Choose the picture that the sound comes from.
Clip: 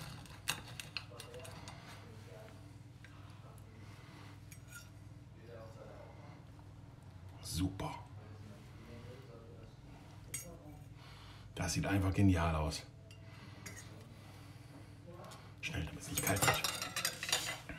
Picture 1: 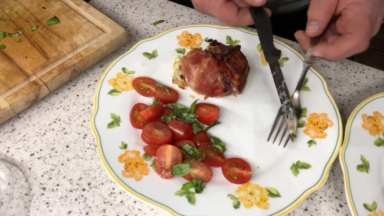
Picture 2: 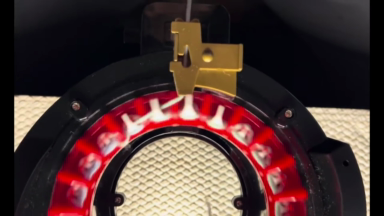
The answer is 1